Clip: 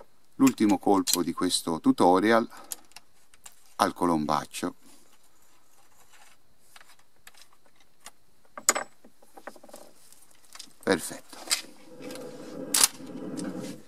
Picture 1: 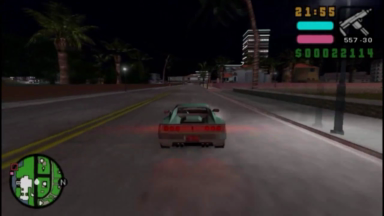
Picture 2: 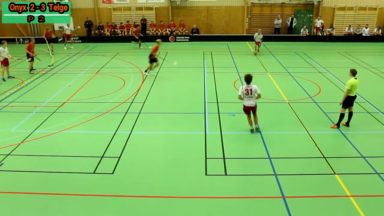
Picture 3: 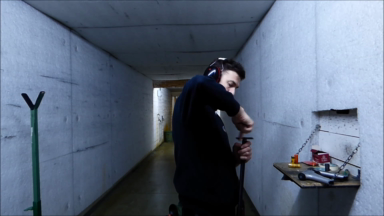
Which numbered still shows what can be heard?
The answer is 3